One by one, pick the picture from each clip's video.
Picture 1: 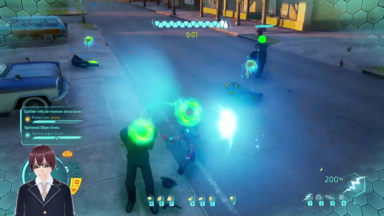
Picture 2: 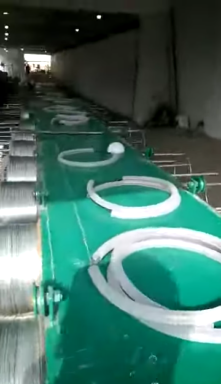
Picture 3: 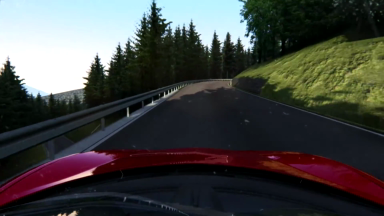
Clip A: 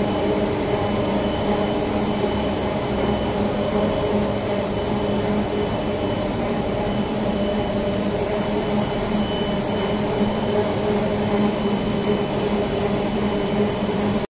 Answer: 2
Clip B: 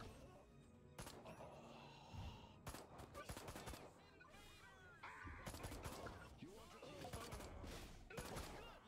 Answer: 1